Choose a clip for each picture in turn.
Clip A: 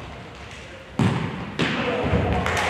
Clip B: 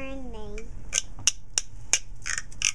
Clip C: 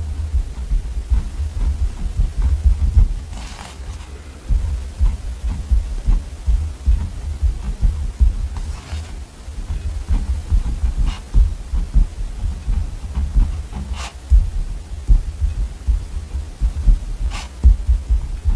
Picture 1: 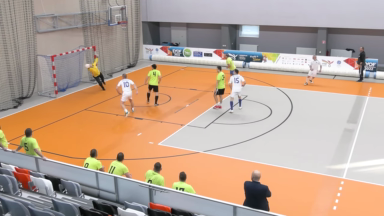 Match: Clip A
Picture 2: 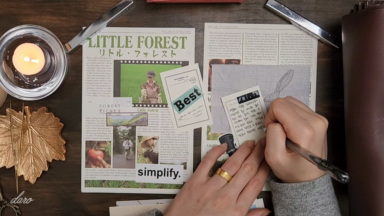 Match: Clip C